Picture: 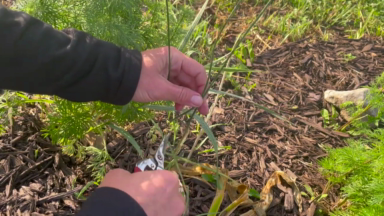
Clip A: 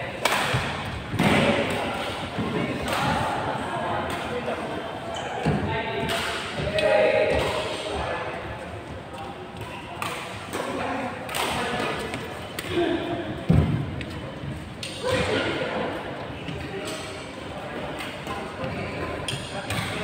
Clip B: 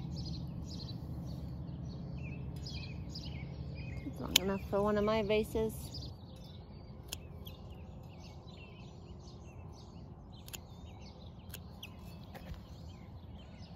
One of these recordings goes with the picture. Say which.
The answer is B